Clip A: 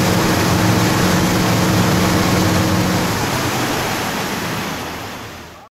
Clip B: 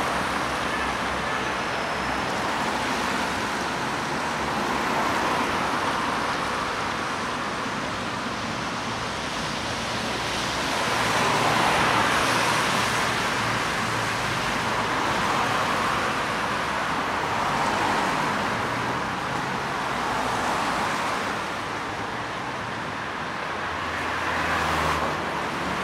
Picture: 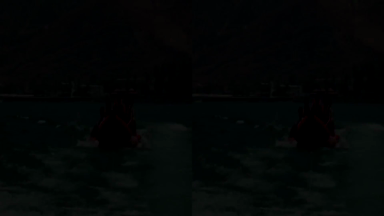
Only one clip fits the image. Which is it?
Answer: A